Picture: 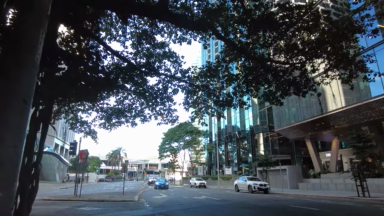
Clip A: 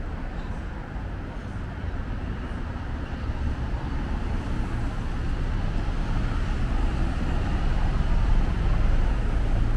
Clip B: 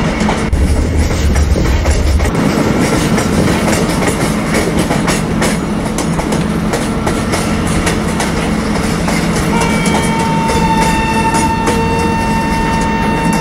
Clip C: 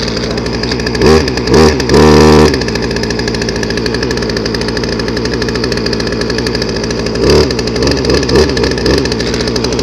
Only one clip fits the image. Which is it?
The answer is A